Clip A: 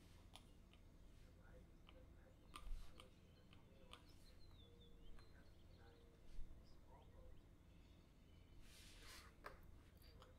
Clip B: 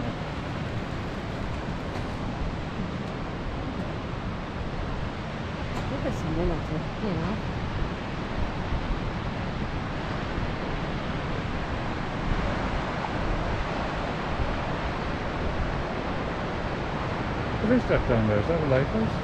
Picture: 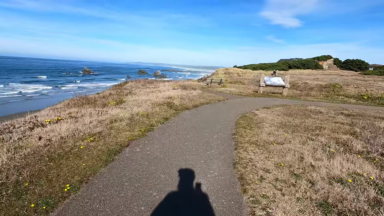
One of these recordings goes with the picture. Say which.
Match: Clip B